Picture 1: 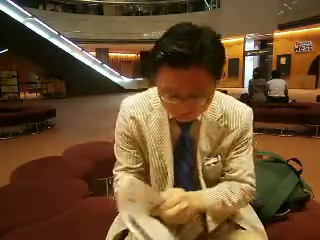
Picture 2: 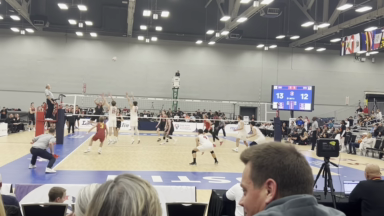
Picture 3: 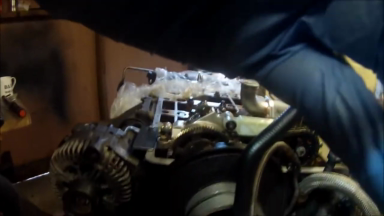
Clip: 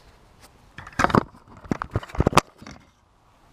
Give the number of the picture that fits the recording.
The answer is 3